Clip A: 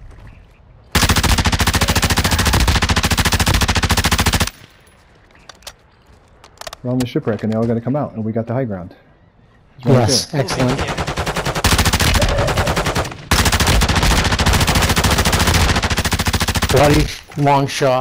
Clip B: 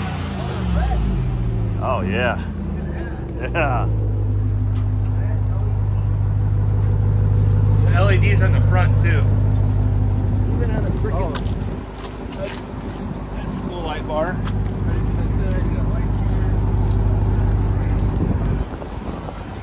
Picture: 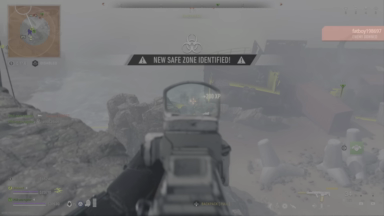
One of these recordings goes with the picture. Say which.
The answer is A